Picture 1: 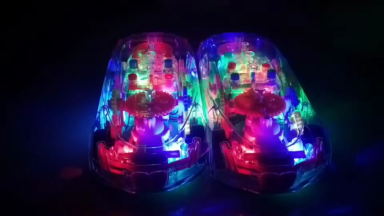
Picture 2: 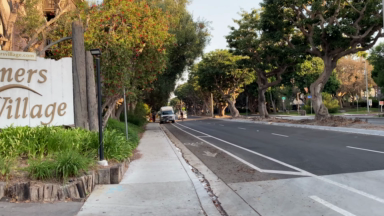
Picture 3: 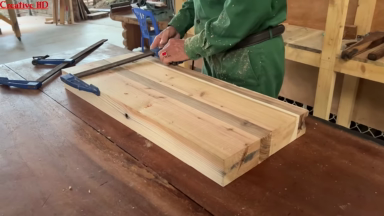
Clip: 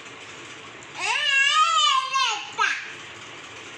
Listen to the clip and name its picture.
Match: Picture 1